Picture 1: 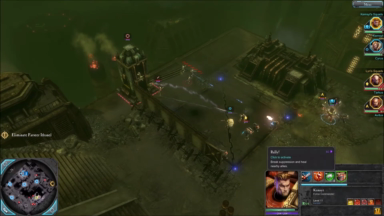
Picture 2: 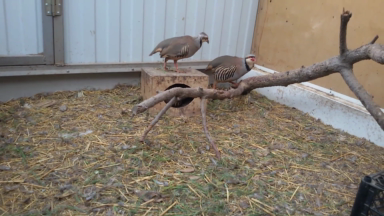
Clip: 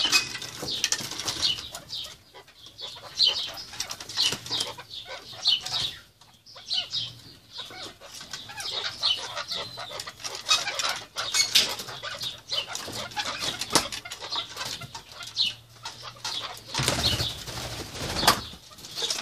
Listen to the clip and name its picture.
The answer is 2